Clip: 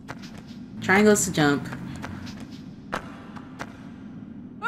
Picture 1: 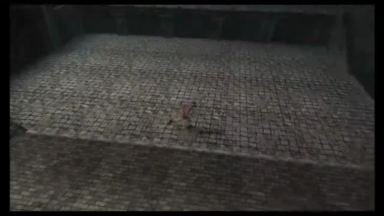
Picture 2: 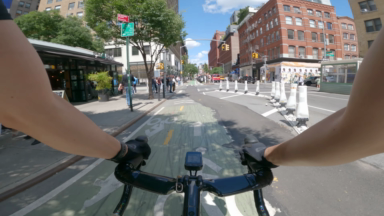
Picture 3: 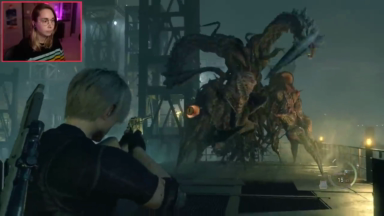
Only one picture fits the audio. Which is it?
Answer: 1